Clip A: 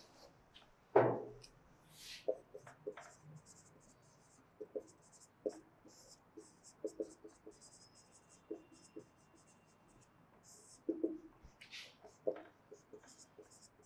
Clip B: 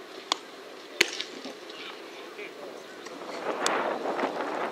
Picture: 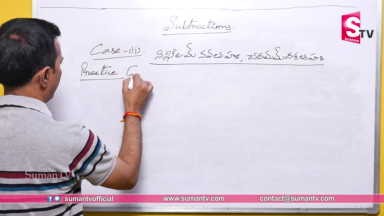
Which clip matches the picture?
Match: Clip A